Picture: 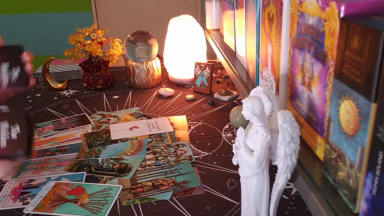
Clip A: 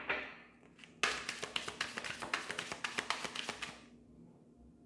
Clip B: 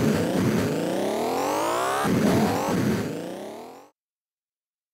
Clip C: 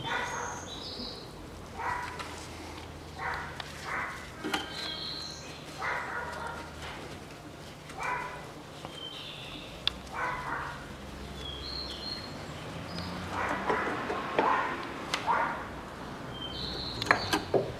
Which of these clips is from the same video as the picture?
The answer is A